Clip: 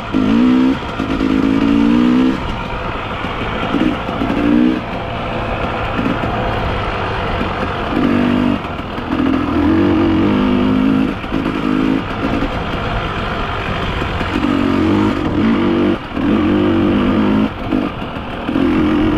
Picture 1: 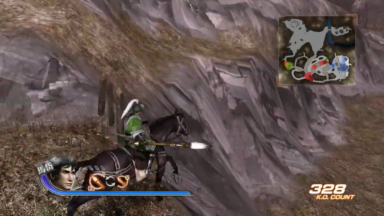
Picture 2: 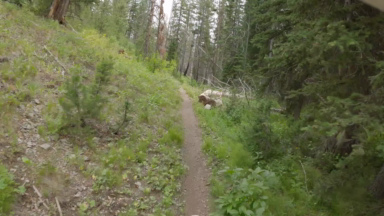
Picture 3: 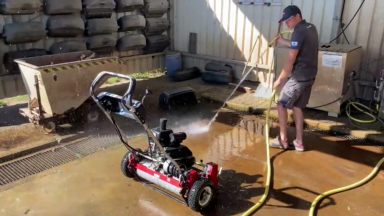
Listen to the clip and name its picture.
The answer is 2